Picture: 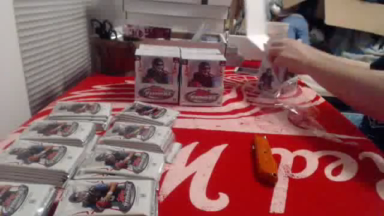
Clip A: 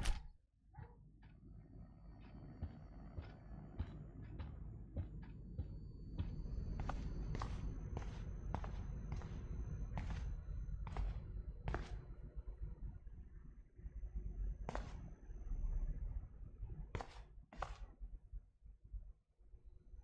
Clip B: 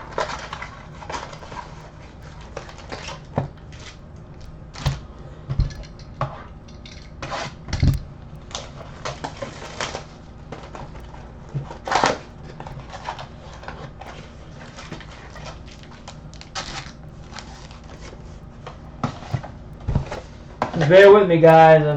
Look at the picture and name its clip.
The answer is B